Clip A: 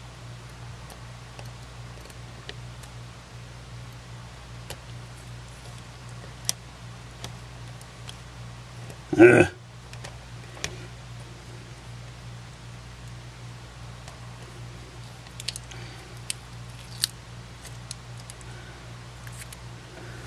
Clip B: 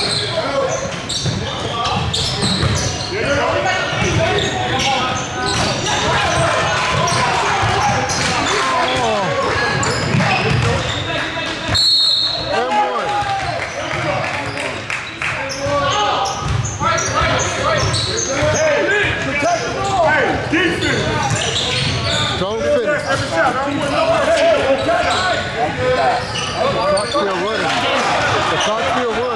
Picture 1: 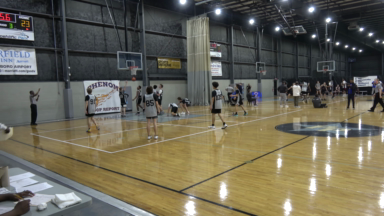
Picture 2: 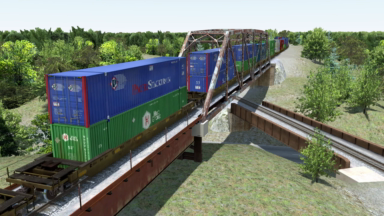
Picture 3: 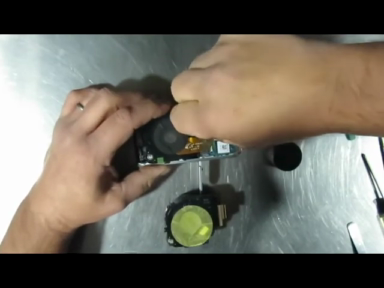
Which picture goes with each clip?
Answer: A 3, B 1